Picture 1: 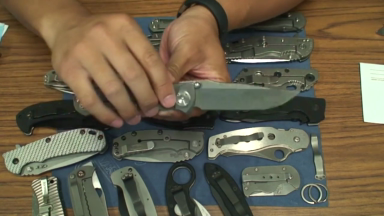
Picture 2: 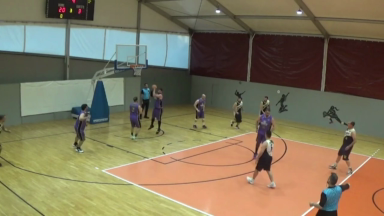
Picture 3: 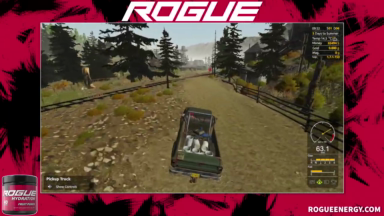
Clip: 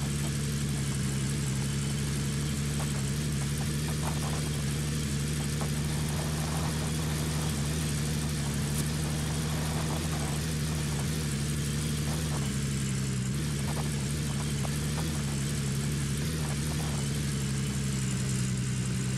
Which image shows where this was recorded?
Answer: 3